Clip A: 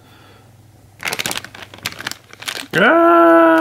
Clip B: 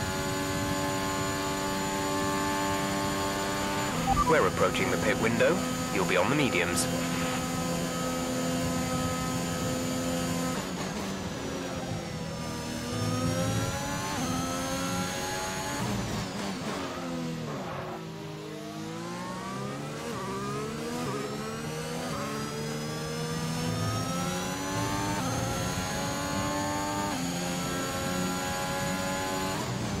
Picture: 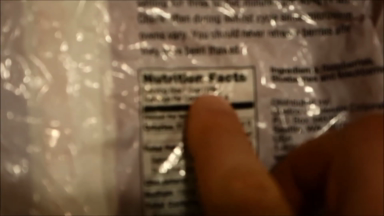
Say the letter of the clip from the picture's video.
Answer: A